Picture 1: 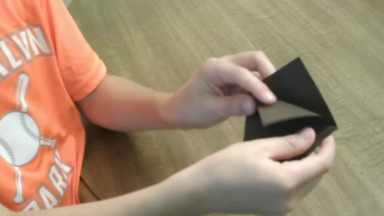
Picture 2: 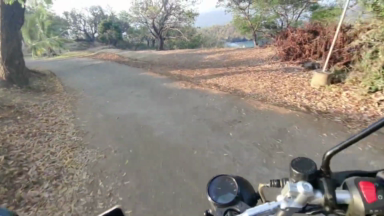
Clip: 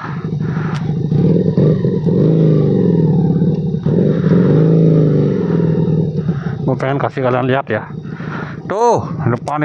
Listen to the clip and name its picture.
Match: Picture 2